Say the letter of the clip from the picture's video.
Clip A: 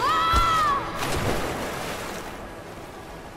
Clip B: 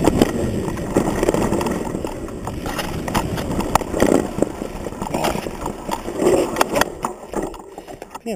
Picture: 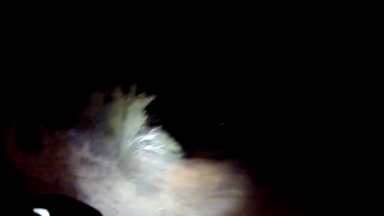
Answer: B